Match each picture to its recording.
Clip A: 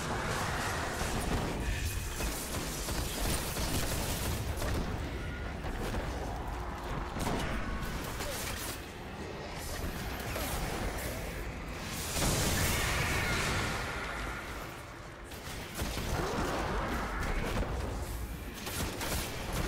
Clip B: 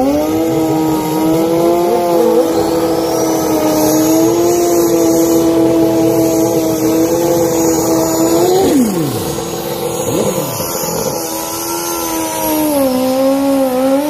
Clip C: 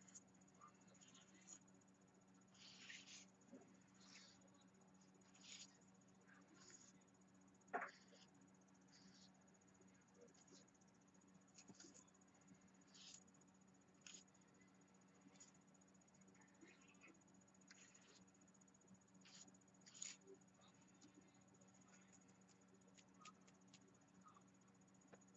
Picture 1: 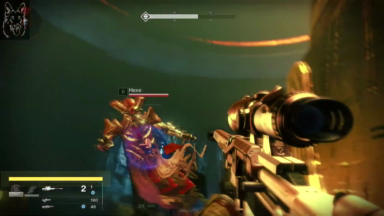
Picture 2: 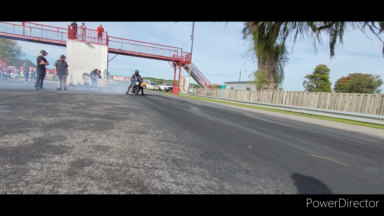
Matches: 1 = A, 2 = B